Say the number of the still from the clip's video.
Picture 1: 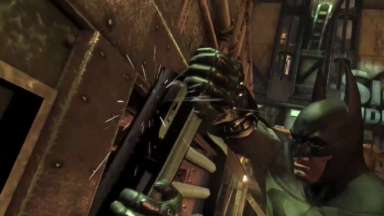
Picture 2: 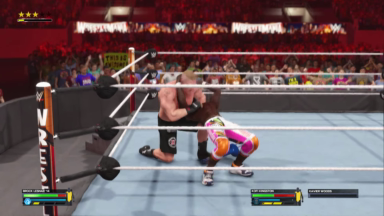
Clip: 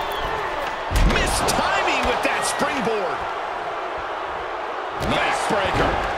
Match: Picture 2